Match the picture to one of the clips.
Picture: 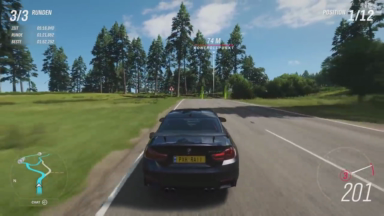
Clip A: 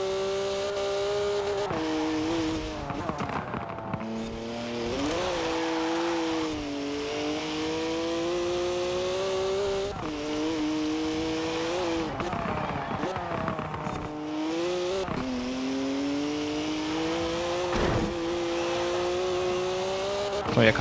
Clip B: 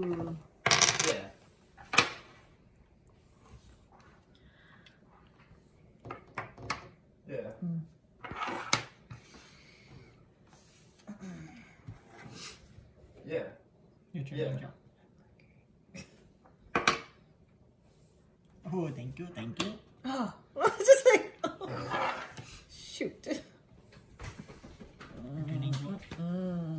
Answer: A